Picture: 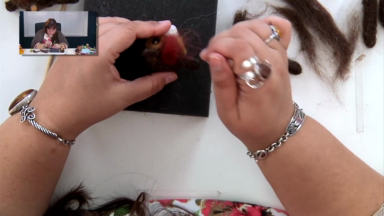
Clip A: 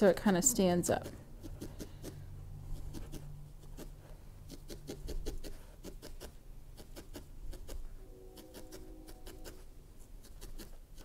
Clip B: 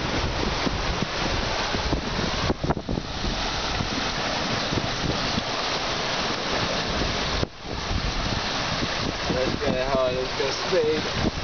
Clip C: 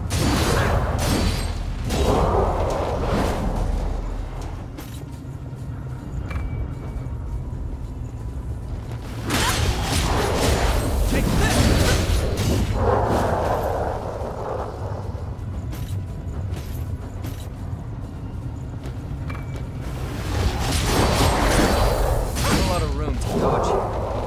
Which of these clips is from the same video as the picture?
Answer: A